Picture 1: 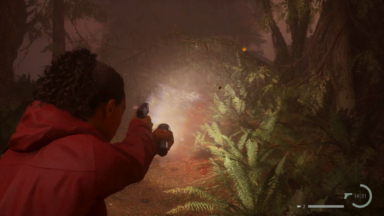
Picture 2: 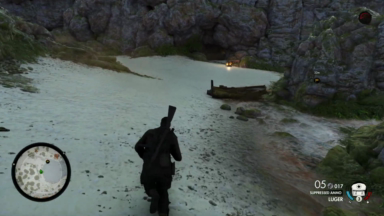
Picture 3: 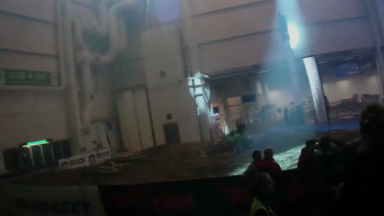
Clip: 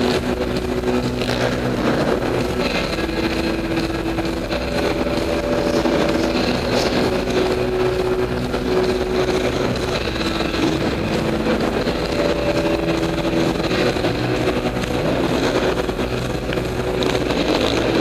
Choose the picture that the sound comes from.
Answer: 3